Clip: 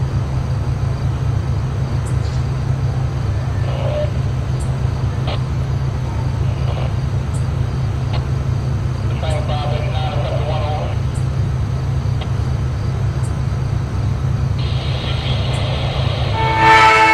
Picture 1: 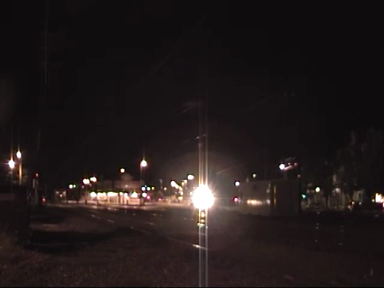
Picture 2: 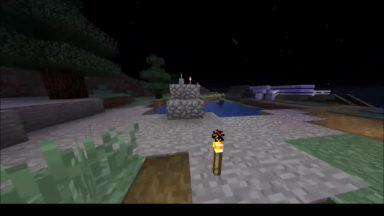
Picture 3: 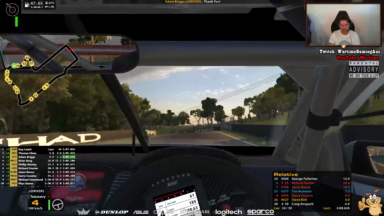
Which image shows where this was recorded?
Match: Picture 1